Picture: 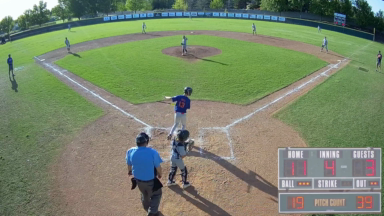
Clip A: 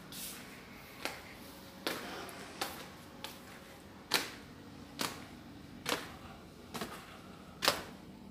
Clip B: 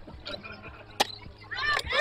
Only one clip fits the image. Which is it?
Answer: B